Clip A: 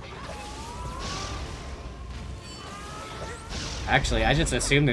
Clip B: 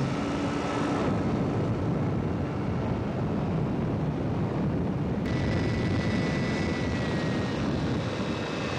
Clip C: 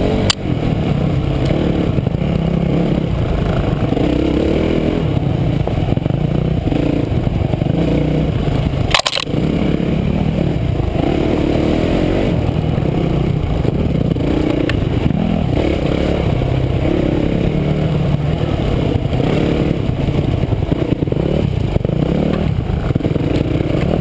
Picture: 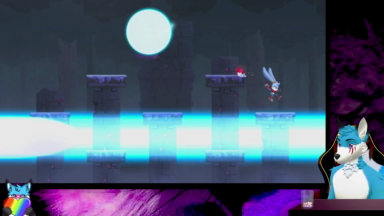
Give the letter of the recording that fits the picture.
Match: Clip A